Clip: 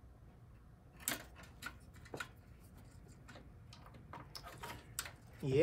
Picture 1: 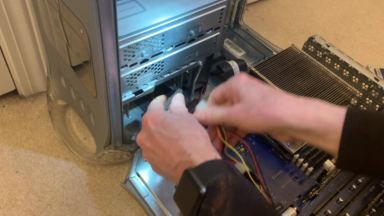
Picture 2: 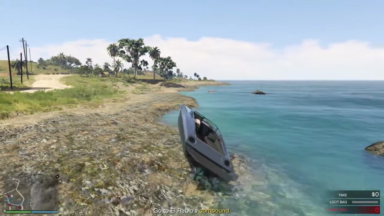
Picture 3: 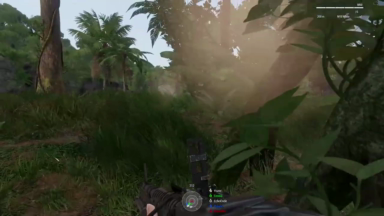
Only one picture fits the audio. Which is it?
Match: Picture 1